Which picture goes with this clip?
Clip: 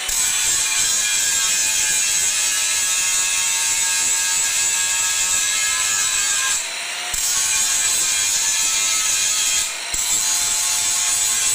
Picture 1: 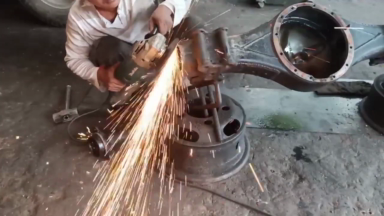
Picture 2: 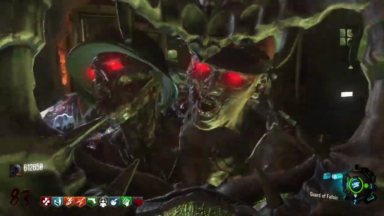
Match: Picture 1